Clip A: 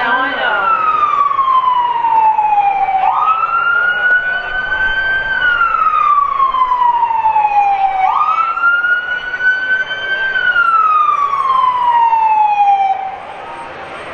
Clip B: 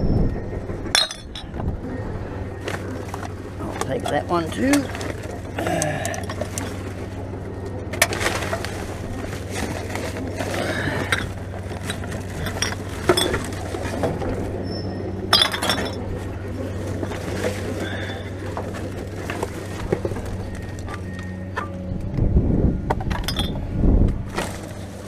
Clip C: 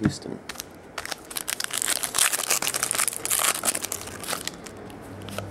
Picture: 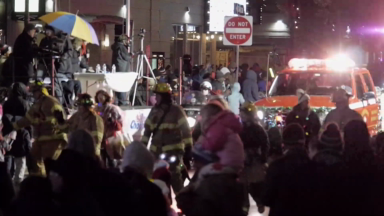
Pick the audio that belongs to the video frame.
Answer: A